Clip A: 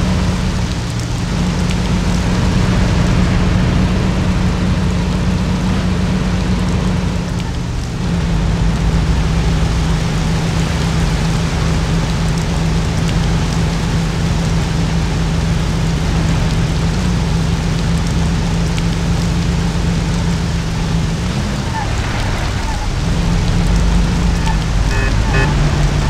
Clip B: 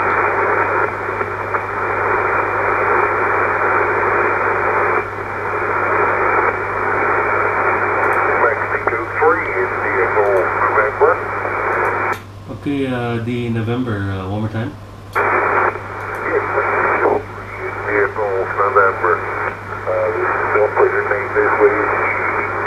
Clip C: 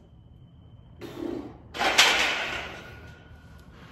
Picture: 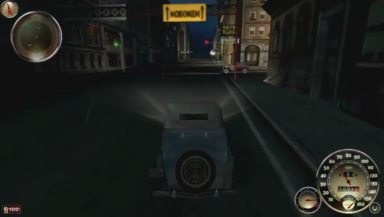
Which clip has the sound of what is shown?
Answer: A